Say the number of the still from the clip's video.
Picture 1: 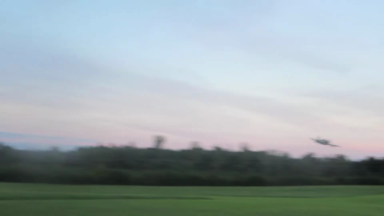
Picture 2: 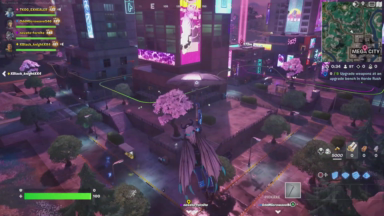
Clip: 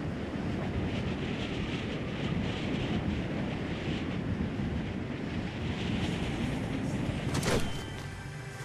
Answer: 2